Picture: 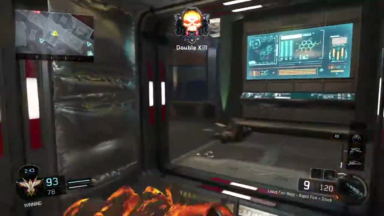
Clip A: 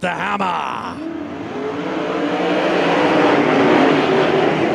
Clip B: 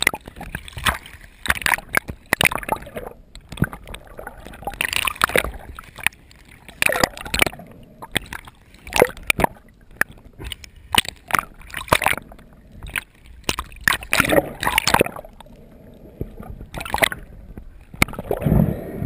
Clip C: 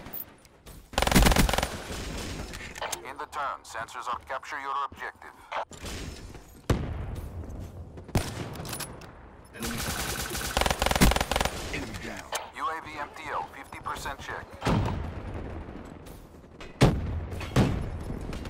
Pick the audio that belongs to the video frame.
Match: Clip C